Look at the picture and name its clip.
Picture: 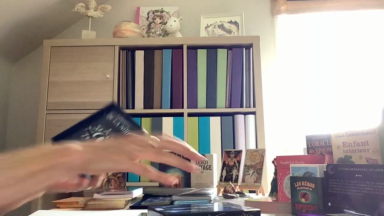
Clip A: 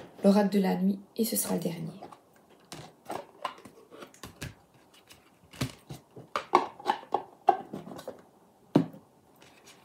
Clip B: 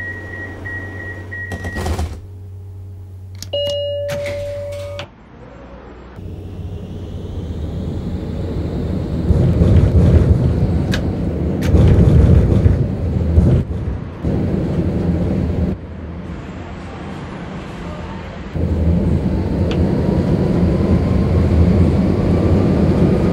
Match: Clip A